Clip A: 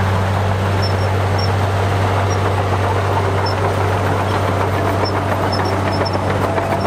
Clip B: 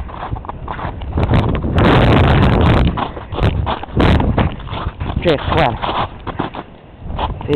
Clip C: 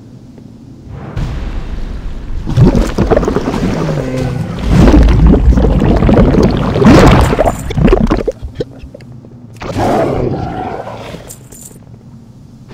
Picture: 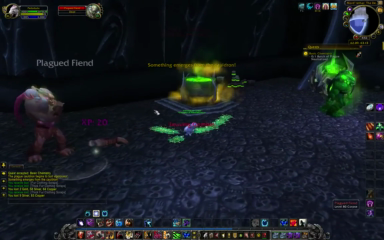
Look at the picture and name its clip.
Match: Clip C